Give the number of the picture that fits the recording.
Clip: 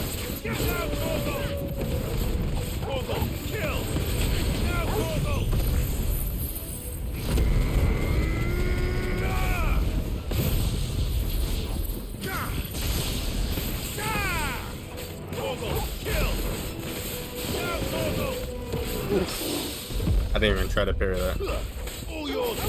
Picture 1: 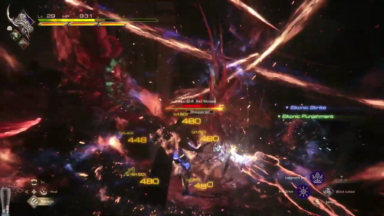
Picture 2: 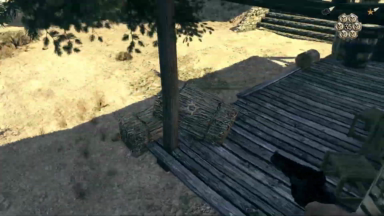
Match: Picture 1